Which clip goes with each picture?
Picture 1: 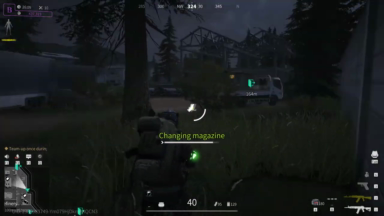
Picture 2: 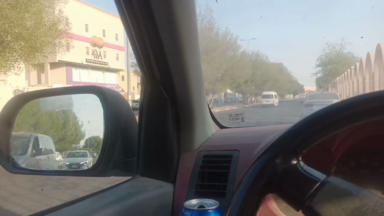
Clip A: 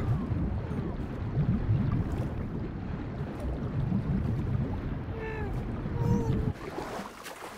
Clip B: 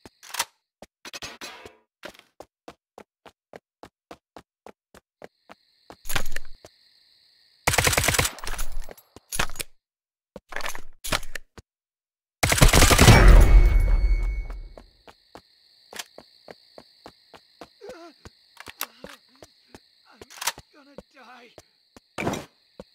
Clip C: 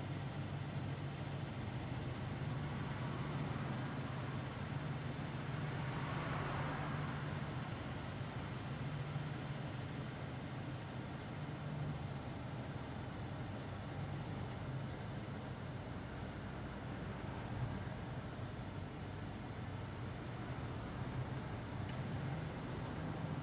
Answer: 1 B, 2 C